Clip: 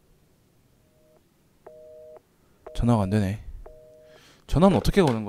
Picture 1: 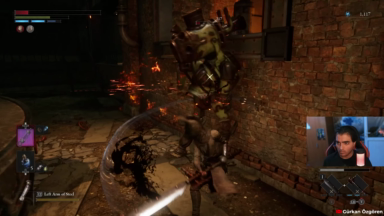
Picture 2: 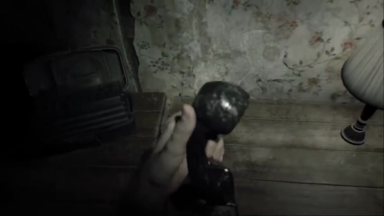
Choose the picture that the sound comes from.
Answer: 2